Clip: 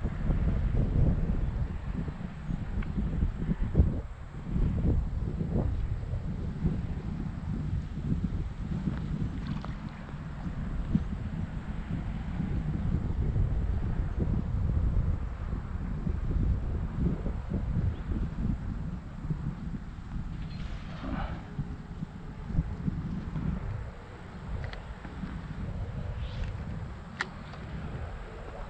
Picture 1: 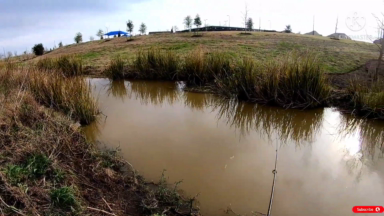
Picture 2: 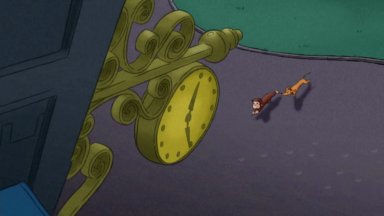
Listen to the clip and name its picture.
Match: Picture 1